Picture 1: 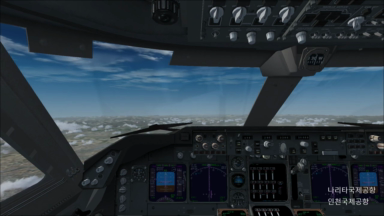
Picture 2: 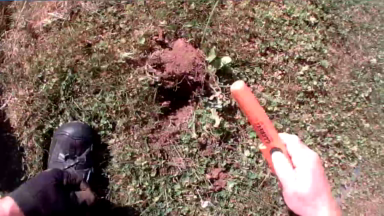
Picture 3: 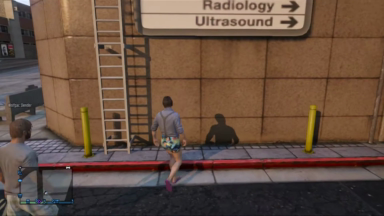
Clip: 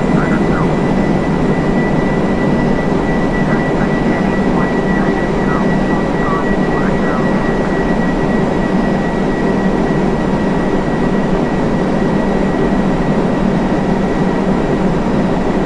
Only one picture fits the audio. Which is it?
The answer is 1